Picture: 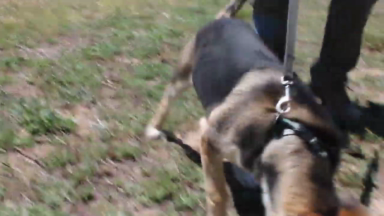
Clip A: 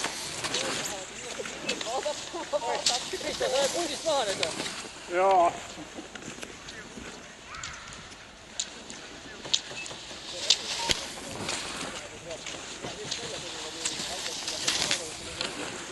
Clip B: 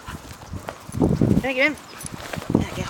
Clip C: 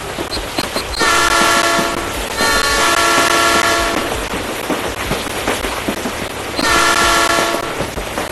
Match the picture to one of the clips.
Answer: B